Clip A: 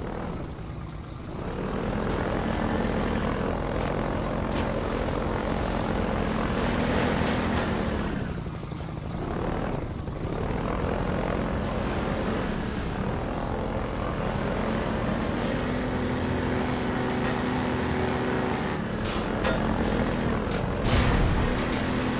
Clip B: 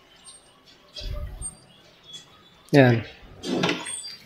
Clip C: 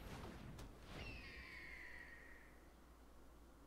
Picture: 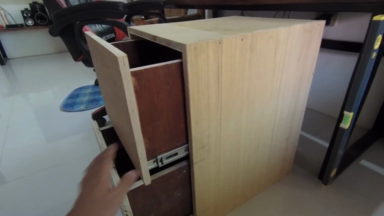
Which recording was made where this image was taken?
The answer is B